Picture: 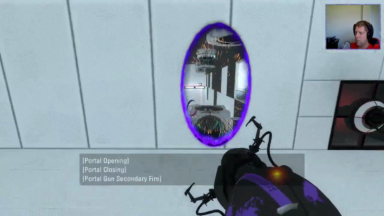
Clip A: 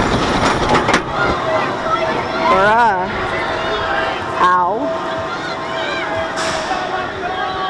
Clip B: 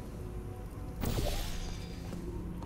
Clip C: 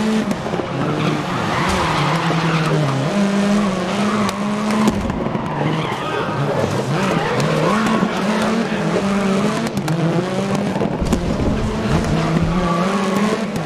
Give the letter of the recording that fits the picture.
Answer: B